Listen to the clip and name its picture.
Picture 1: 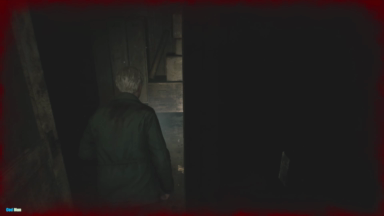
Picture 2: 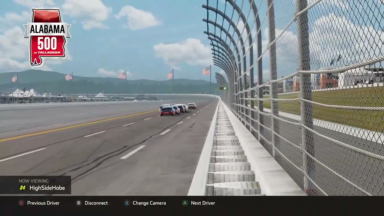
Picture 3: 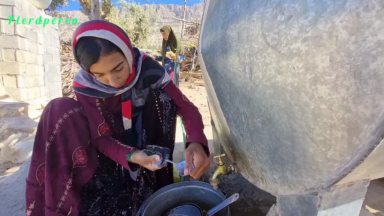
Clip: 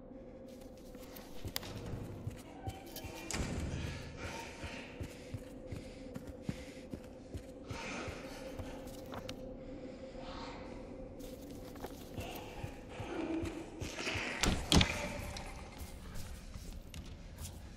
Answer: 1